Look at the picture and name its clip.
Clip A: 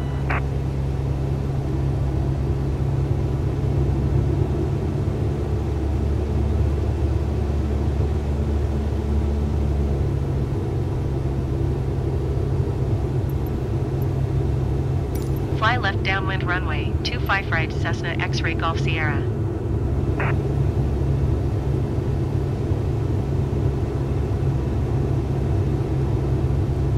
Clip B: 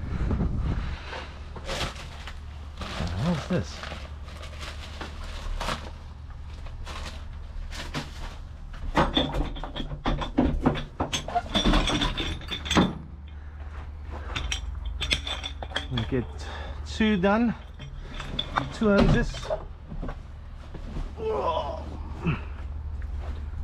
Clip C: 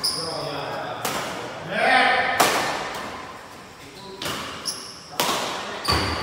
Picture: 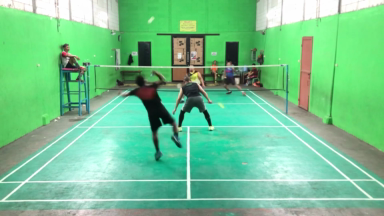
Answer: C